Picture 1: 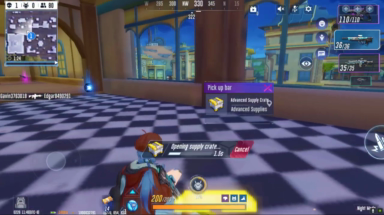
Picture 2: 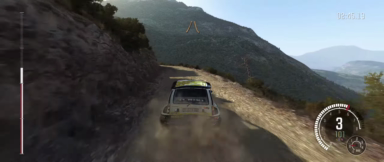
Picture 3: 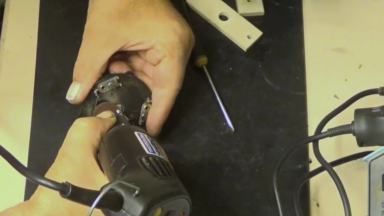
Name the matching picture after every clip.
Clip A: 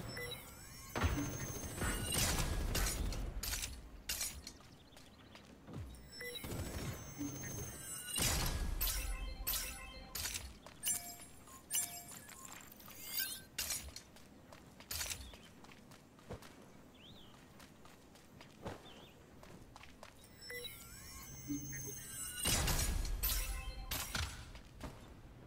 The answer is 1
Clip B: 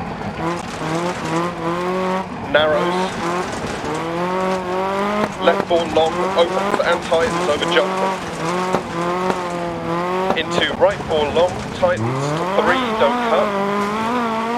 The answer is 2